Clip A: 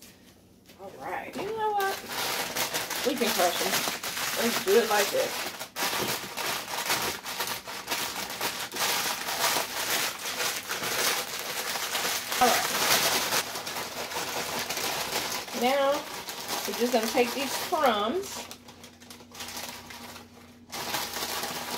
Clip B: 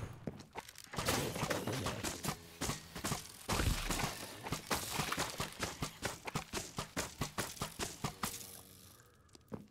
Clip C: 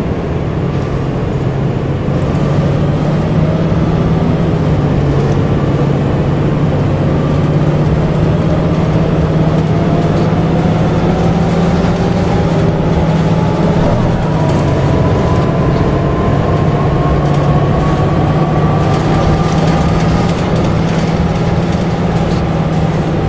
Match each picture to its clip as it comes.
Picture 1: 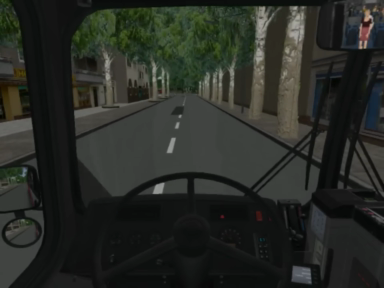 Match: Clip C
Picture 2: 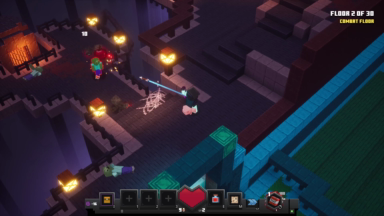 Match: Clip B